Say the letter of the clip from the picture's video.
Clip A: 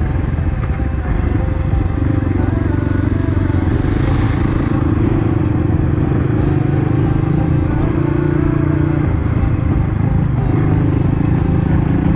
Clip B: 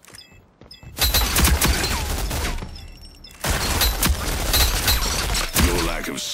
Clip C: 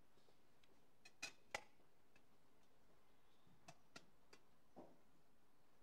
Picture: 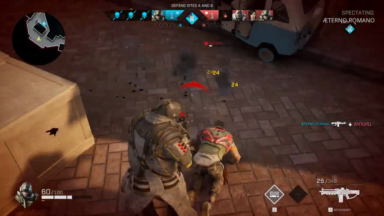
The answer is B